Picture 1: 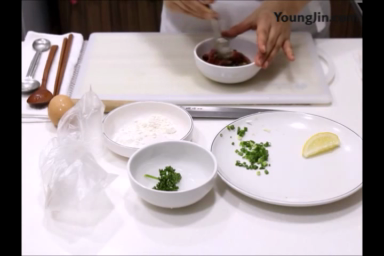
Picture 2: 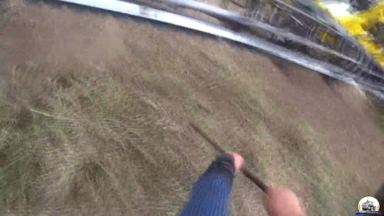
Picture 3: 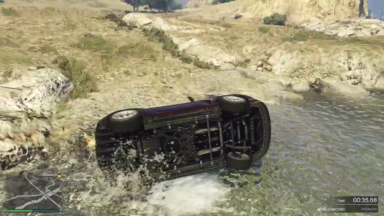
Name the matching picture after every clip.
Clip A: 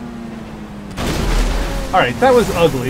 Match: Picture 3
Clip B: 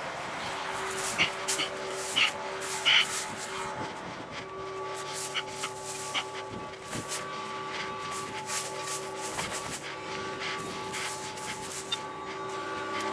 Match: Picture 2